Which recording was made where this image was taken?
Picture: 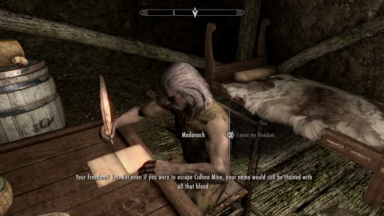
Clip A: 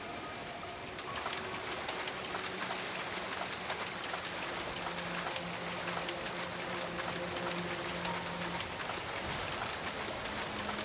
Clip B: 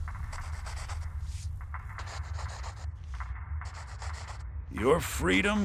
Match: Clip B